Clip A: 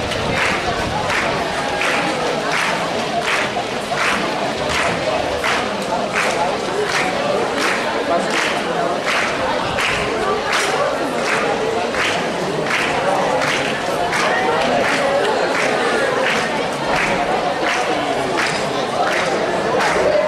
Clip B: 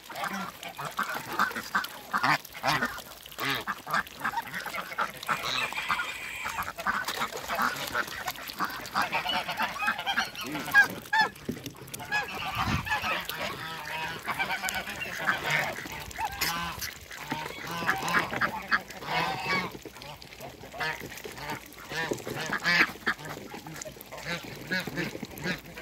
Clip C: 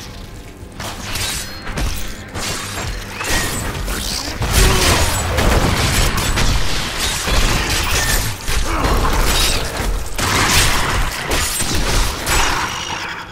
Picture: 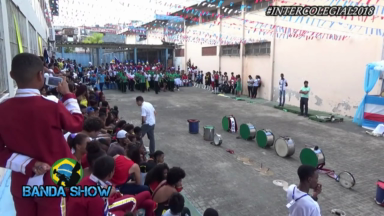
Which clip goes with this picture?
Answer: A